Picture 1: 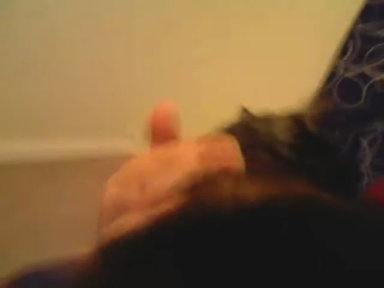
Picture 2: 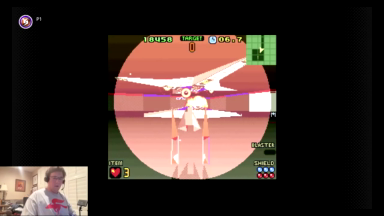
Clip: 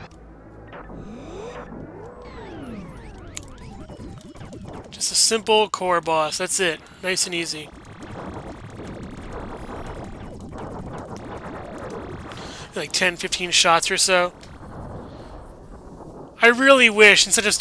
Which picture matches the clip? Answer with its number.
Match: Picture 2